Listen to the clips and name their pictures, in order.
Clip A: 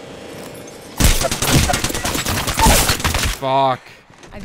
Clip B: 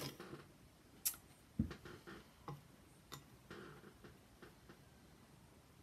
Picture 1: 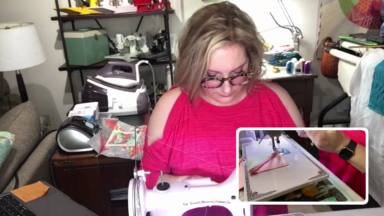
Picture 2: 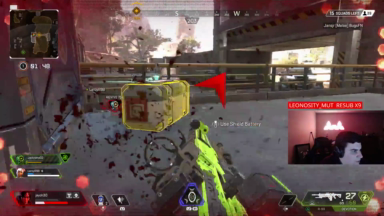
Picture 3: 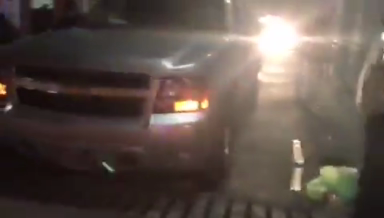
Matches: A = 2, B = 1